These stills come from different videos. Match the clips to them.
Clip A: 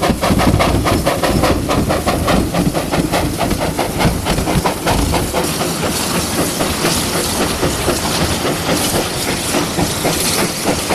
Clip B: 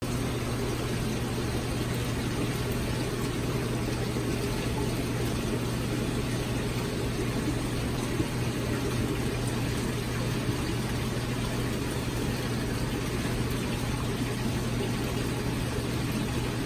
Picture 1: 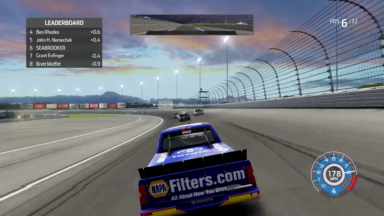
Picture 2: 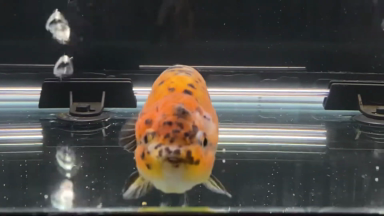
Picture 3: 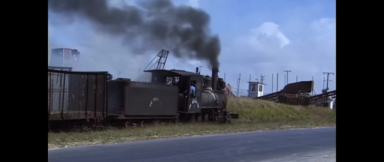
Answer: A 3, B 2